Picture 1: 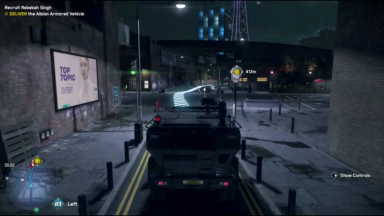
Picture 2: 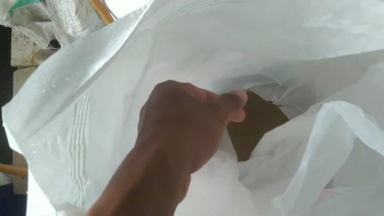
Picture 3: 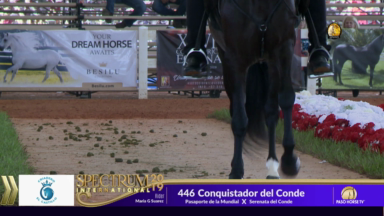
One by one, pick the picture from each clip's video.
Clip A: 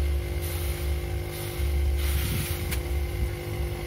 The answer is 2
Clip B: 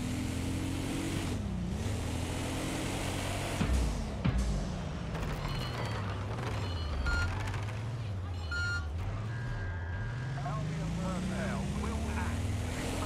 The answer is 1